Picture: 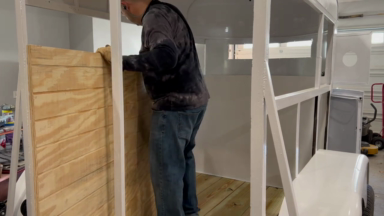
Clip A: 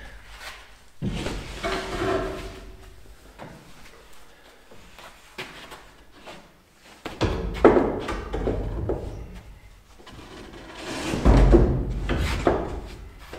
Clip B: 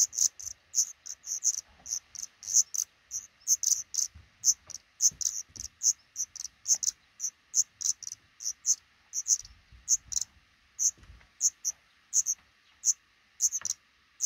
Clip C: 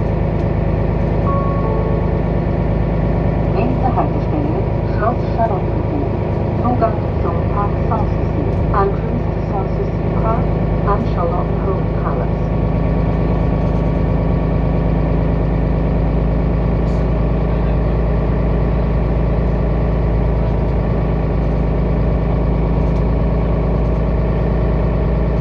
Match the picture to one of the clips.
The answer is A